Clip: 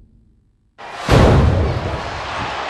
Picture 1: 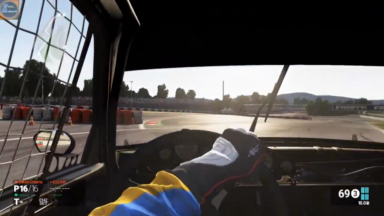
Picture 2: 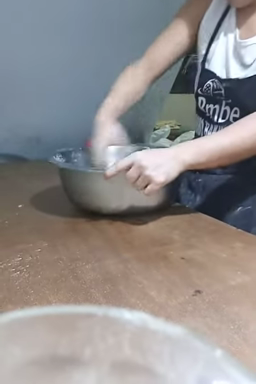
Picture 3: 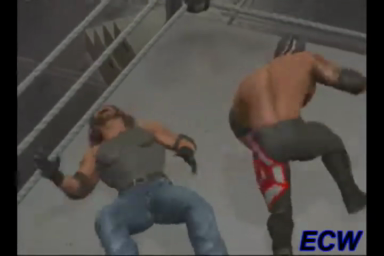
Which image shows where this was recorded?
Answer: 3